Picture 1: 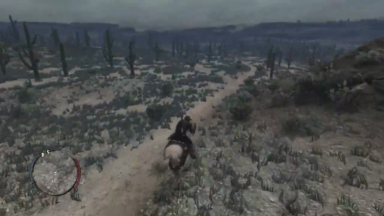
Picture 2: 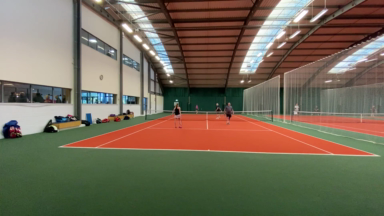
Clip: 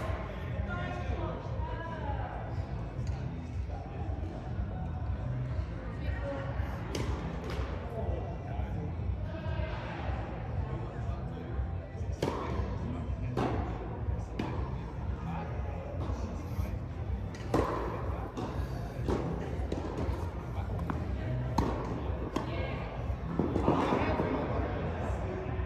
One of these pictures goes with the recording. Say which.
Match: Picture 2